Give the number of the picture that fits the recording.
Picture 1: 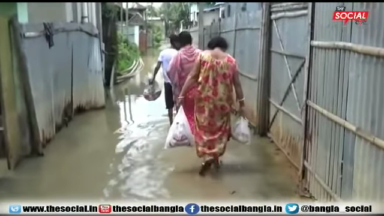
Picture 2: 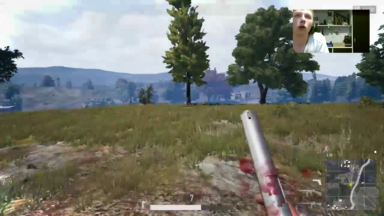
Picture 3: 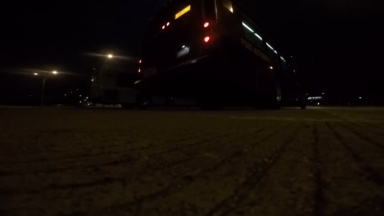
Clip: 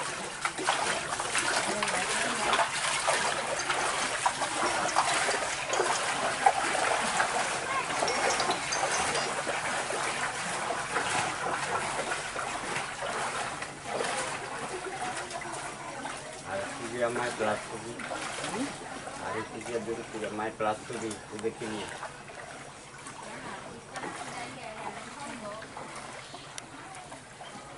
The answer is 1